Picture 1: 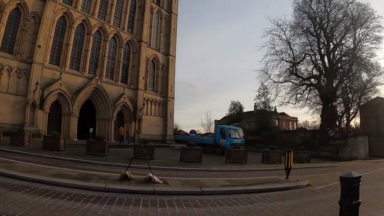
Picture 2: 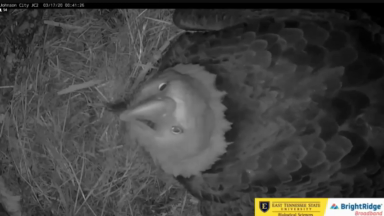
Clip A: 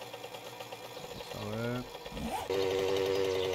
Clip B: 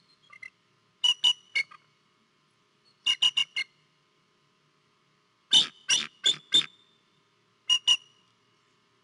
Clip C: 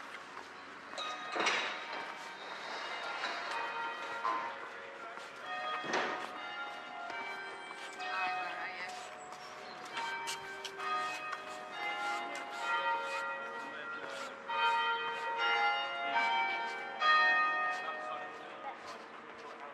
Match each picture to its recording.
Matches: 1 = C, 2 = B